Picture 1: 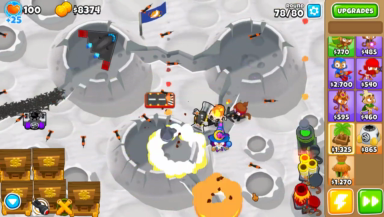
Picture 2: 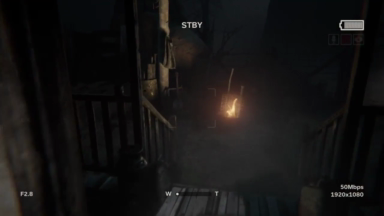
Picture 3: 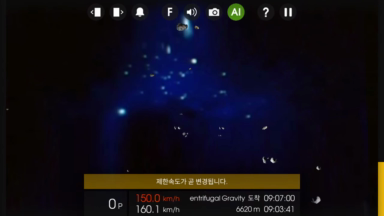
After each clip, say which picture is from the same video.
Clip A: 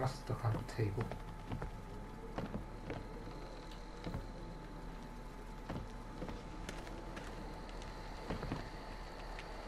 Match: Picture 2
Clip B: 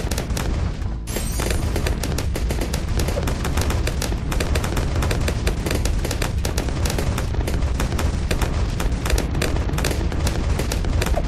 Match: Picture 1